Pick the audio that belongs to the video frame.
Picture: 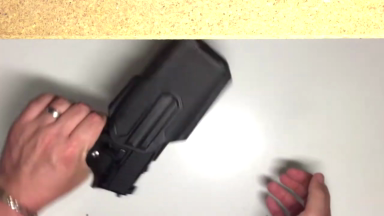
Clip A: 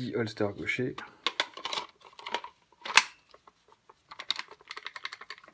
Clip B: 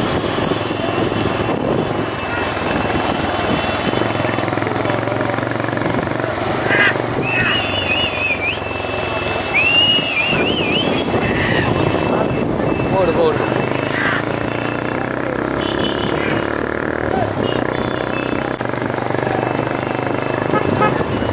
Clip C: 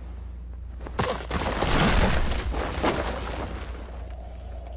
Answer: A